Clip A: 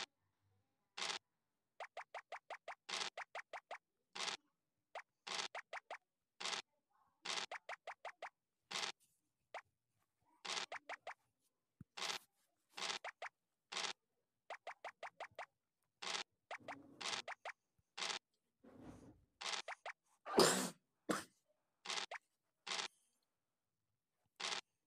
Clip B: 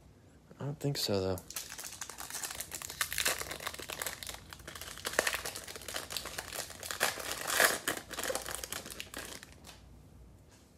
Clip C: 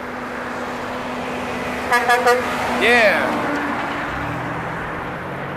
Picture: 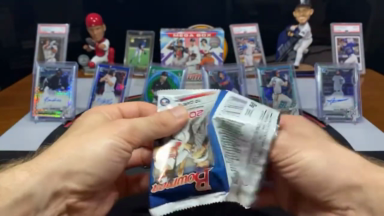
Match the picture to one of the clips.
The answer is B